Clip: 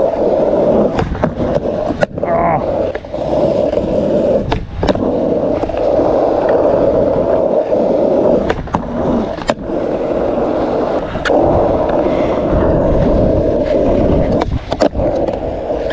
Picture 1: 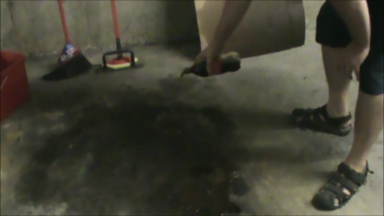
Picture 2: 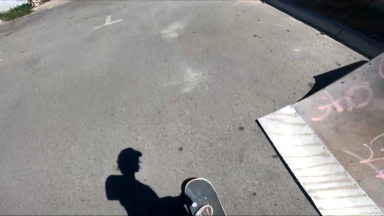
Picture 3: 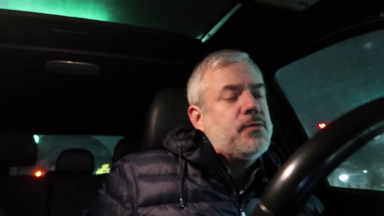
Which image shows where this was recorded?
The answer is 2